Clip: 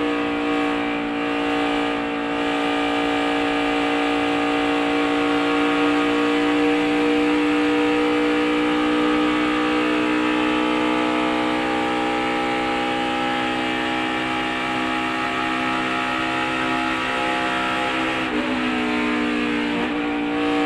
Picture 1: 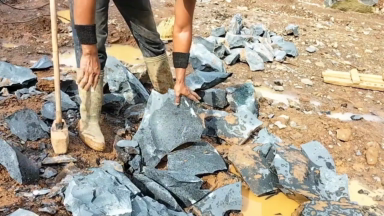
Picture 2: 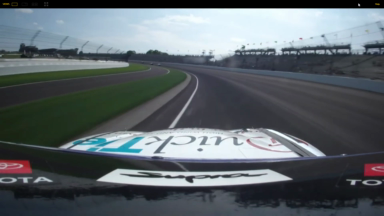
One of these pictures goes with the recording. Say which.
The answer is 2